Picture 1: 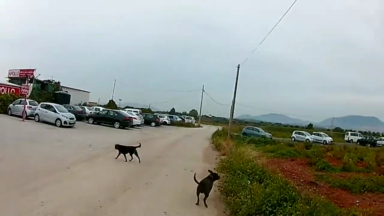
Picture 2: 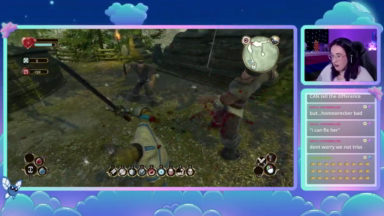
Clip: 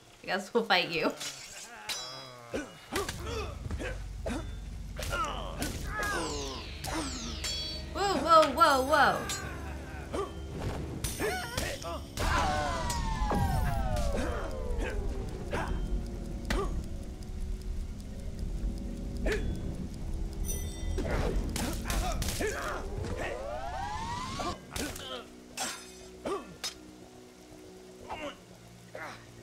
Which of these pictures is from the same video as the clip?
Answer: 2